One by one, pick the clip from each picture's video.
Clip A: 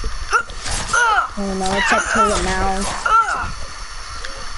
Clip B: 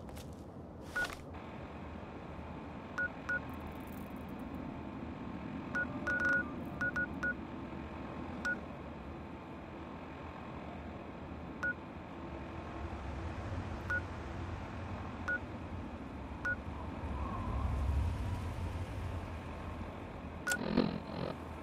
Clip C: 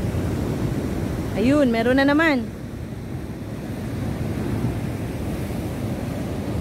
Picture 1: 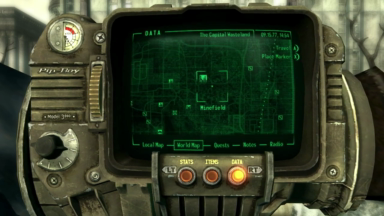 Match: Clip B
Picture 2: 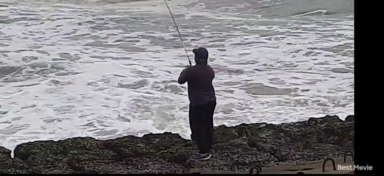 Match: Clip C